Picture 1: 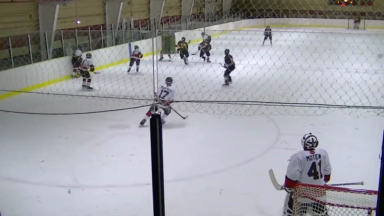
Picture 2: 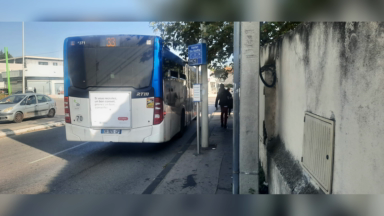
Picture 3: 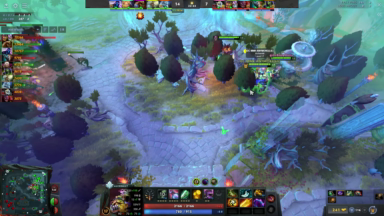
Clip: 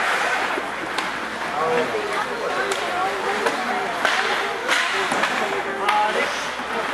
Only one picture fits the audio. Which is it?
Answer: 1